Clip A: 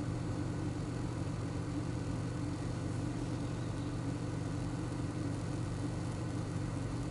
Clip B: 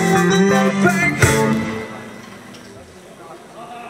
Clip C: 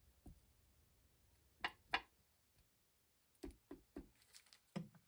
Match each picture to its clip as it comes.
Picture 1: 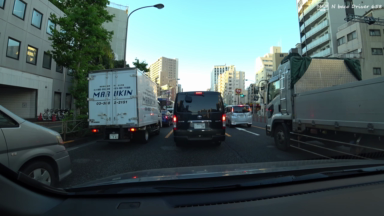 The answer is A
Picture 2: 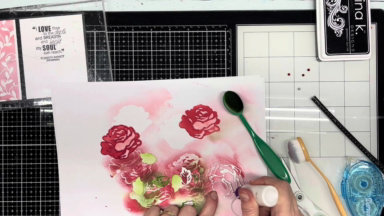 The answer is C